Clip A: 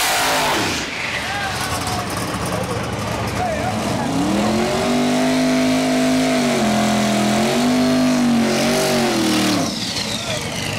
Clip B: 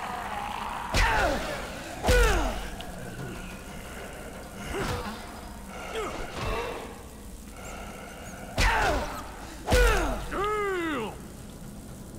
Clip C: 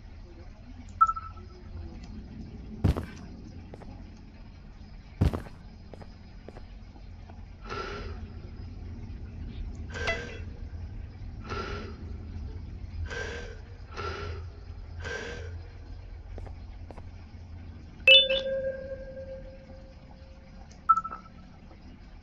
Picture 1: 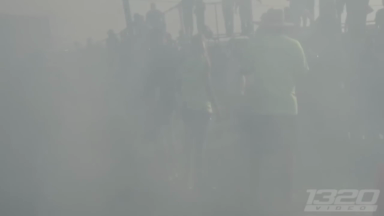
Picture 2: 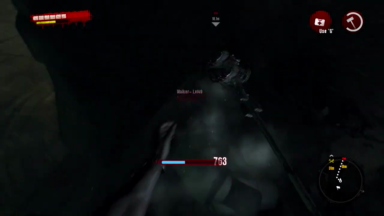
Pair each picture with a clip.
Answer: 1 A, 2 B